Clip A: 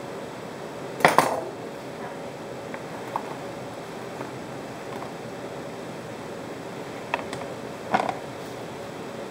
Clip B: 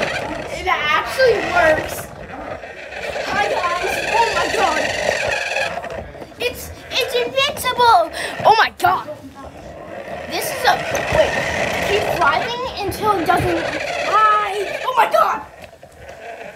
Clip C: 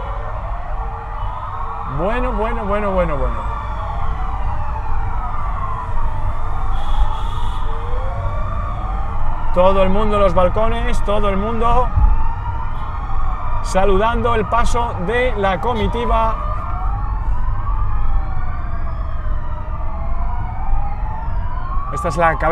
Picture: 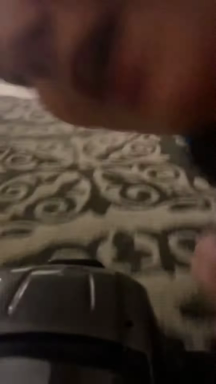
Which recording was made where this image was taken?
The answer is B